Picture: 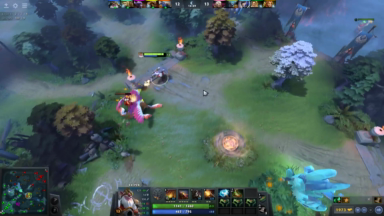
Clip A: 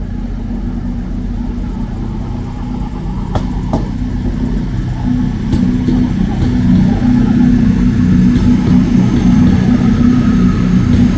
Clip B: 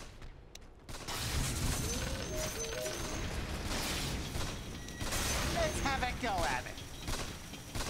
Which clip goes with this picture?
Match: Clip B